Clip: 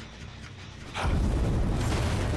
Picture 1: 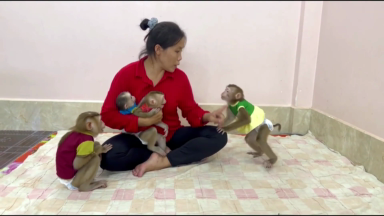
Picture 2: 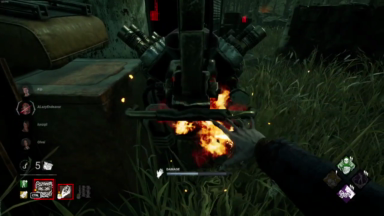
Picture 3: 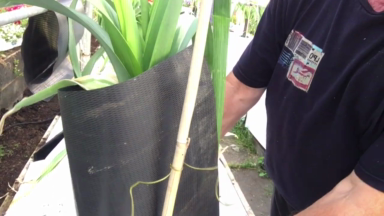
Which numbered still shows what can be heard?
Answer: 2